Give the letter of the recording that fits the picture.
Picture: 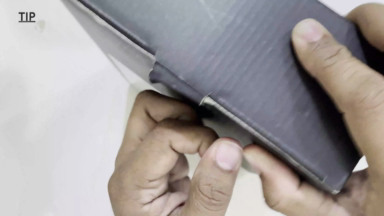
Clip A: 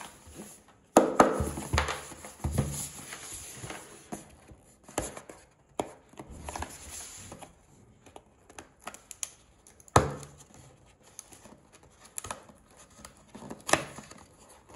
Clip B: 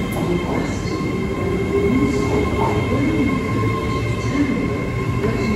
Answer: A